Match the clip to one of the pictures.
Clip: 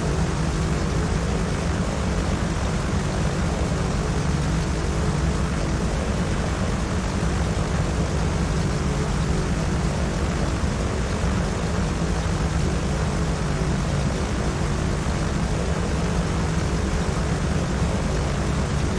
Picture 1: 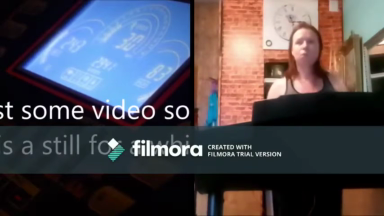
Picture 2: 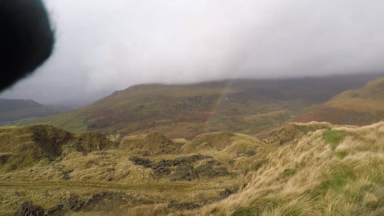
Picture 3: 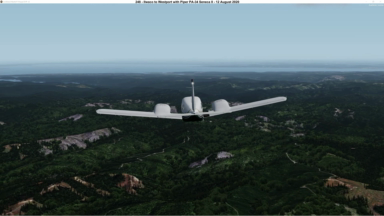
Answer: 3